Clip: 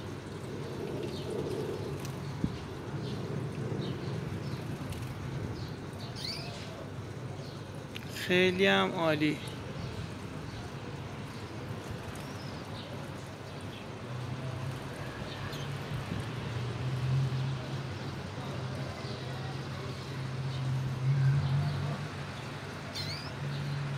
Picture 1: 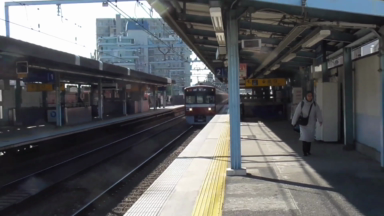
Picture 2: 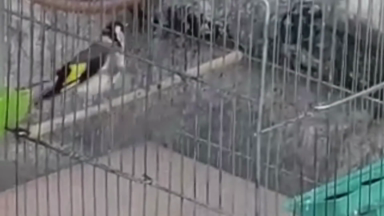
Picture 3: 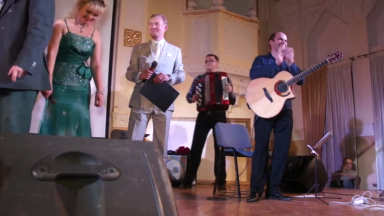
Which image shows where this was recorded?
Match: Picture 2